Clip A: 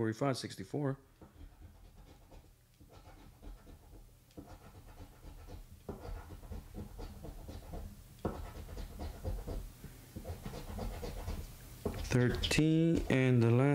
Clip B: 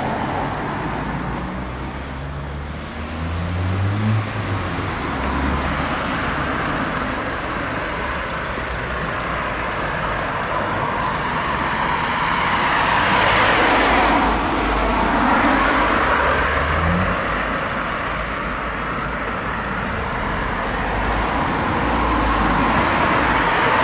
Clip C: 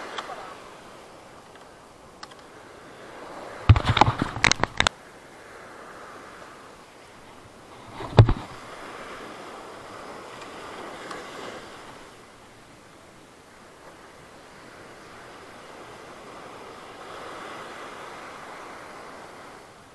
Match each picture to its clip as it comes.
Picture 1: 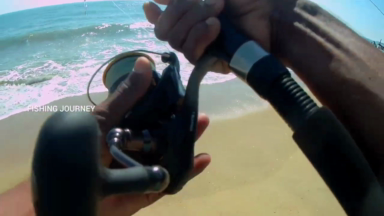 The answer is C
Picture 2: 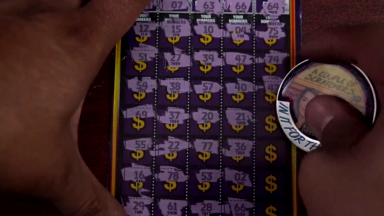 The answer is A